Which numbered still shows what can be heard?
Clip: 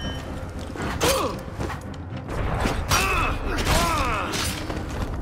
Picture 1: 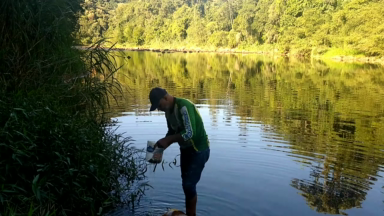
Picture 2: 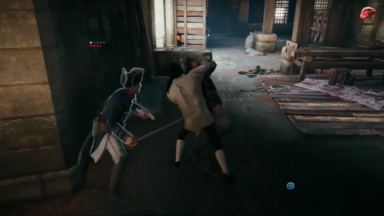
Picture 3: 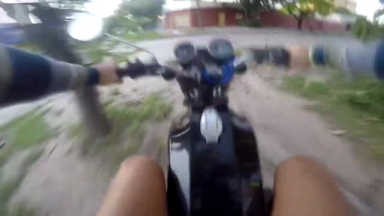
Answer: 2